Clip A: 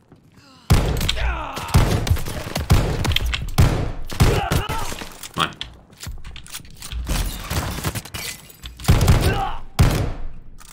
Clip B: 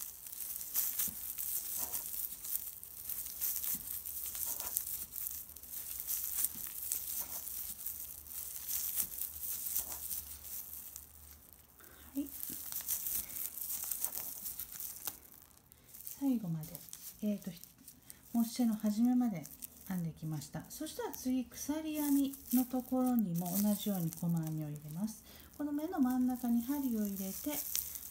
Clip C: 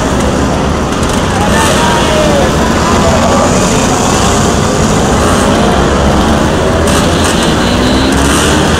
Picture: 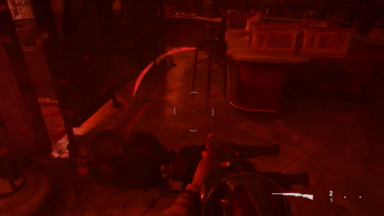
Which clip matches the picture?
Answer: A